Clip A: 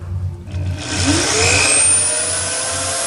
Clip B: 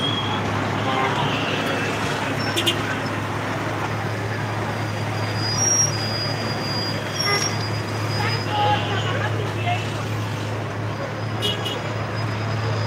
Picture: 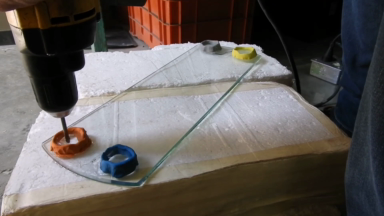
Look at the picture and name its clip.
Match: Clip A